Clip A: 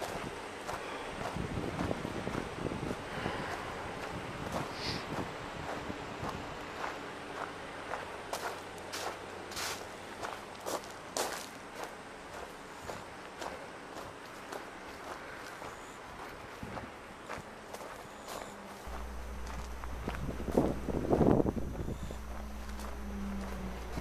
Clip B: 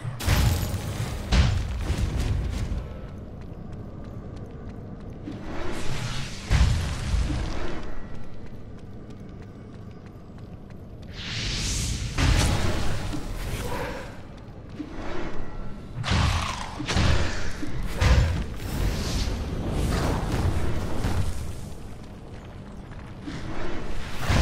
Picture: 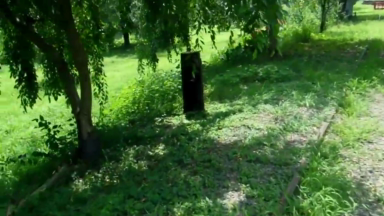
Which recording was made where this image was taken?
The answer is A